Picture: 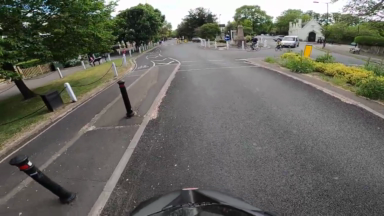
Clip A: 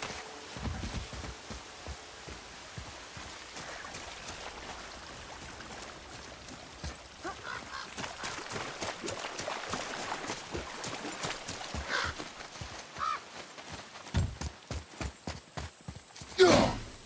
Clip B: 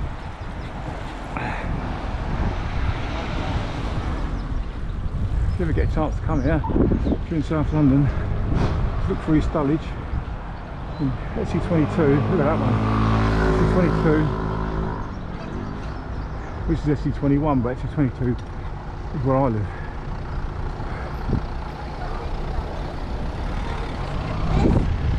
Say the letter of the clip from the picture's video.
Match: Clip B